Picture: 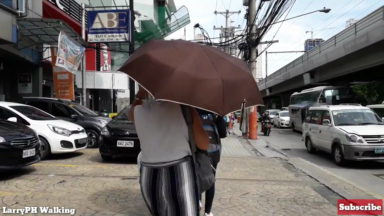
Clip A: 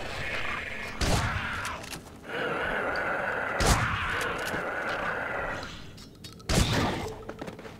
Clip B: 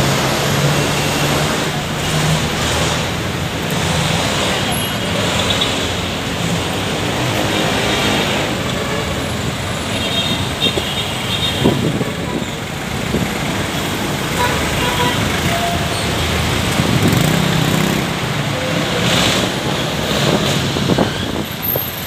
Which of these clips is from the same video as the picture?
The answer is B